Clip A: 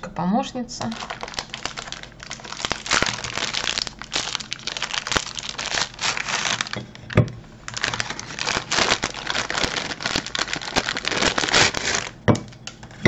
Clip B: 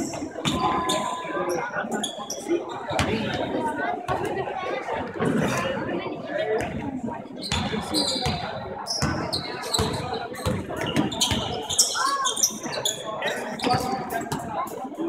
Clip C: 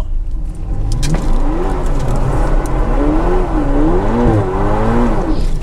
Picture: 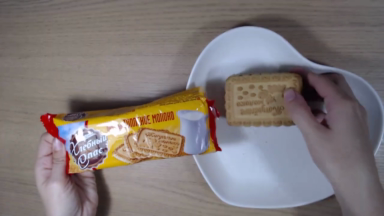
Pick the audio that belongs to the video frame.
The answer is A